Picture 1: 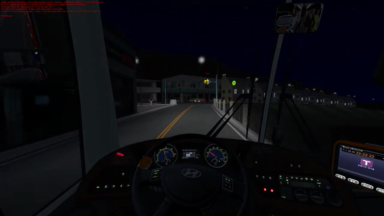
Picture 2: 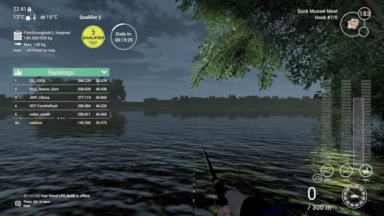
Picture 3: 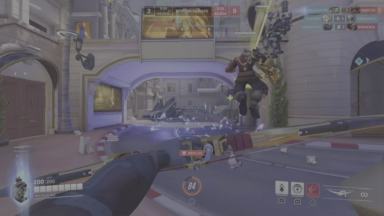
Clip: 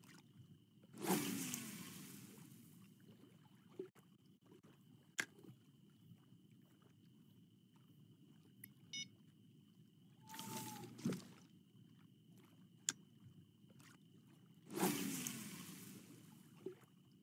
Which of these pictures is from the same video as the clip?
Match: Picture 2